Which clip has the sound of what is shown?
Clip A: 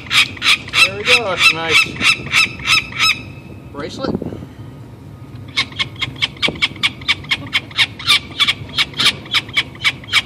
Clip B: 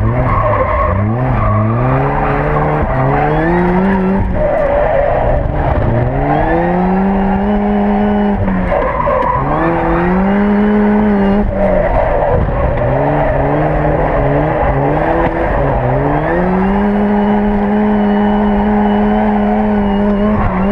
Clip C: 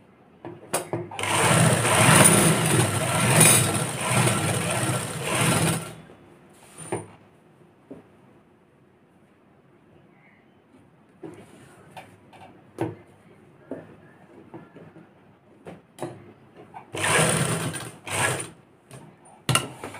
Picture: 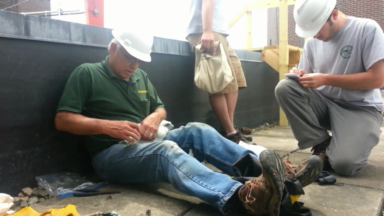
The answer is A